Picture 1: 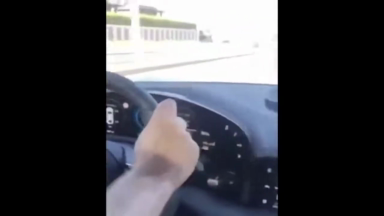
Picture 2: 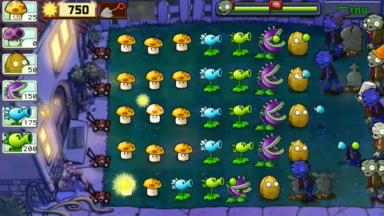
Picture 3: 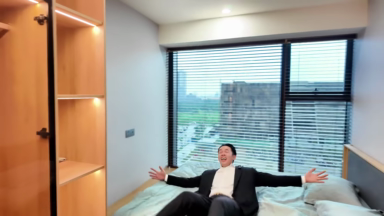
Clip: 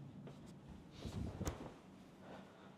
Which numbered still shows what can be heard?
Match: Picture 3